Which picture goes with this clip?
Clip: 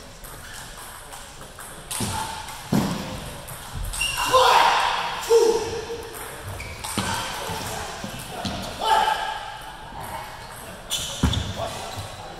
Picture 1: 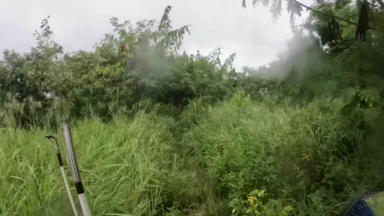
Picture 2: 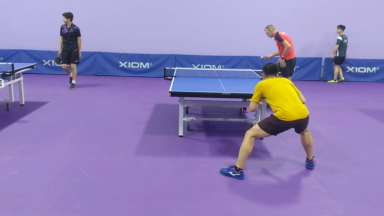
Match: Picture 2